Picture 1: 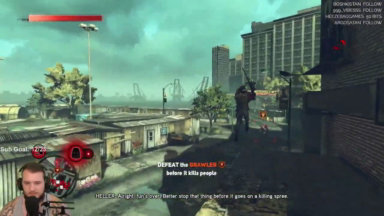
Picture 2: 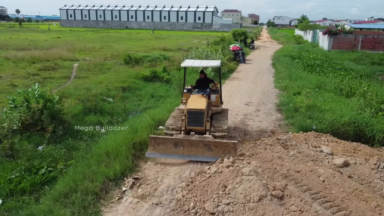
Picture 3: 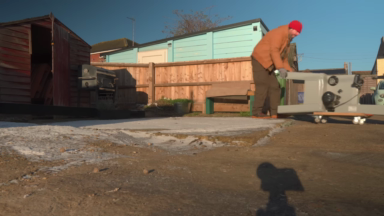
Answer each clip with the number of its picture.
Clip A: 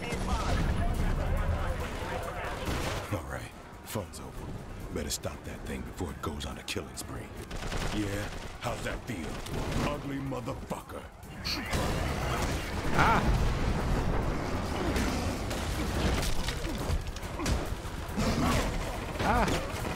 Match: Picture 1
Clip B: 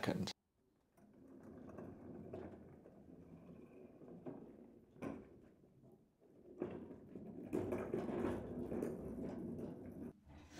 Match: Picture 3